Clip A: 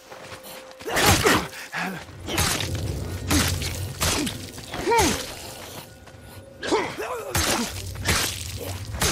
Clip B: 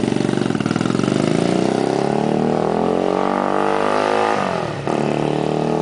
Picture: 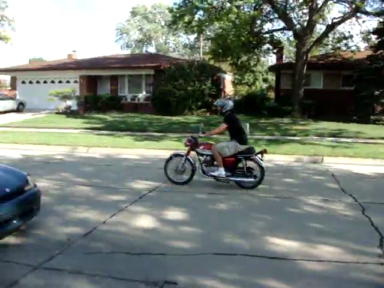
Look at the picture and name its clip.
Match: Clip B